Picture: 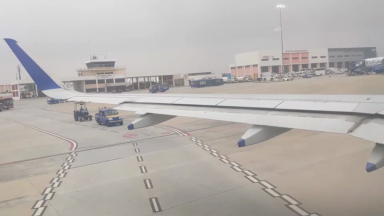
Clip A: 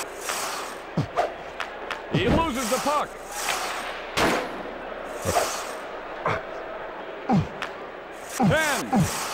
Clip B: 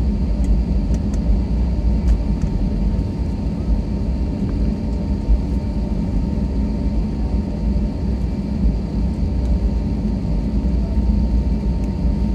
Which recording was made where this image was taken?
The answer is B